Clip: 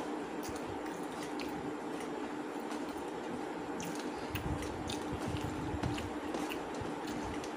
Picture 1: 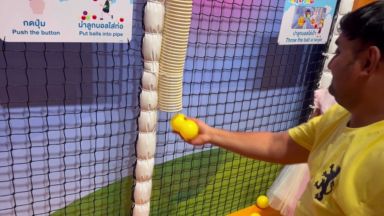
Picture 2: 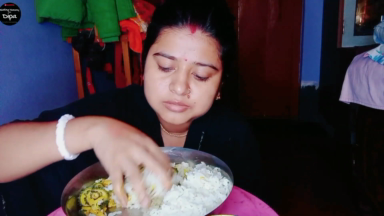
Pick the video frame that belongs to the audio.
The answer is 2